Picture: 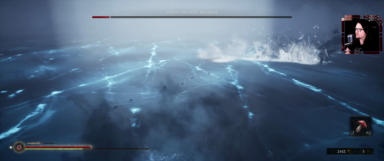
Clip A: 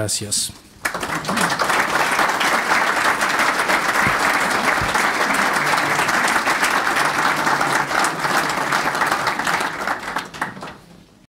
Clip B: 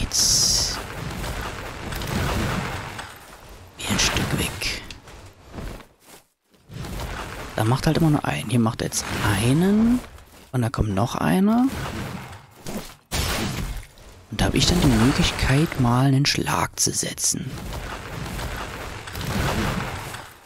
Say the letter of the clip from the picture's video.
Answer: B